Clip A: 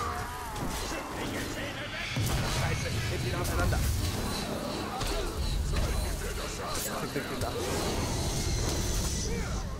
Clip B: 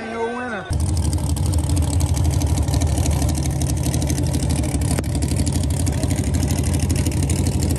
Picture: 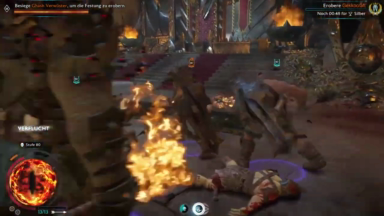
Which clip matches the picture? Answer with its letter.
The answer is A